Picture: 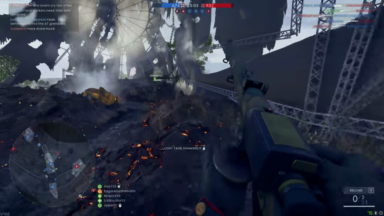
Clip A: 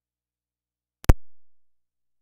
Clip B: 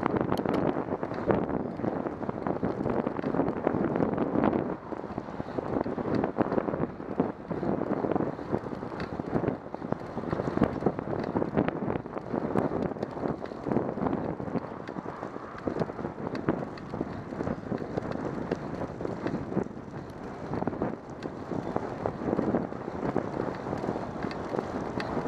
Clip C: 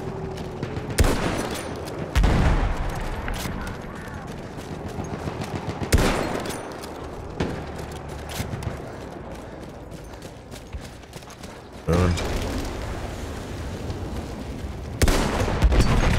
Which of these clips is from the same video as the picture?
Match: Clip C